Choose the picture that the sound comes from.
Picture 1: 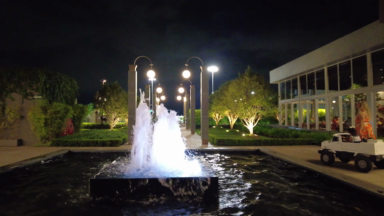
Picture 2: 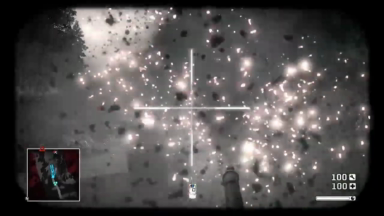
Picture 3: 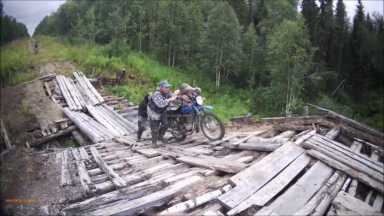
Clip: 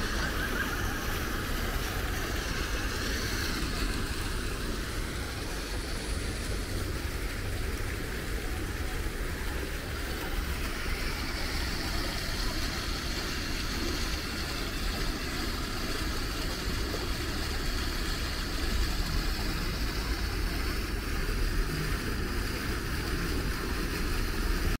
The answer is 1